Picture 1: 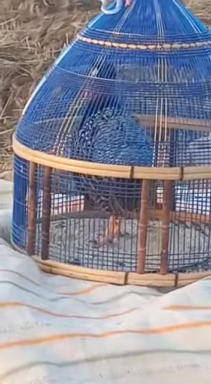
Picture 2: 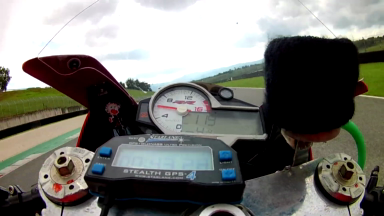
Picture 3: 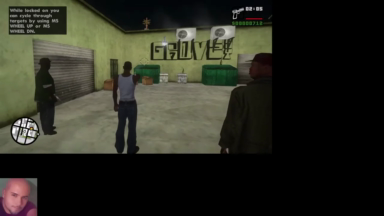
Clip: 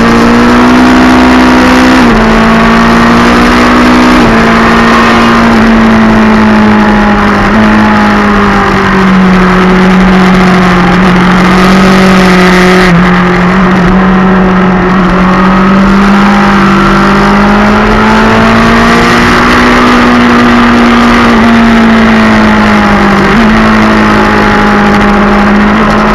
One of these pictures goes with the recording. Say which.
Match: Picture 2